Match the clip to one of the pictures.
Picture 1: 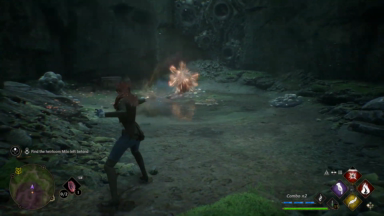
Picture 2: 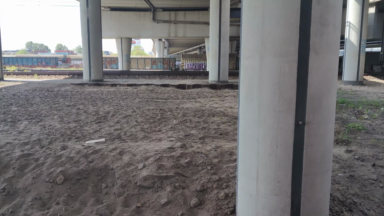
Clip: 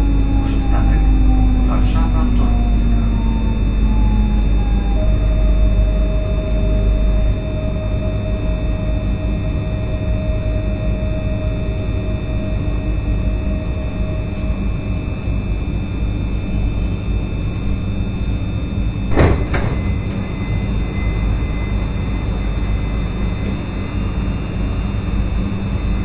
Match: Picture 2